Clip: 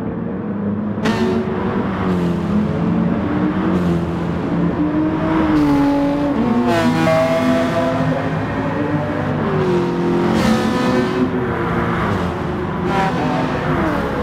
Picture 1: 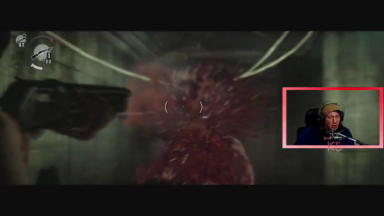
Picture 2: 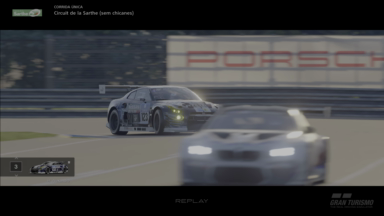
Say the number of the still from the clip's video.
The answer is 2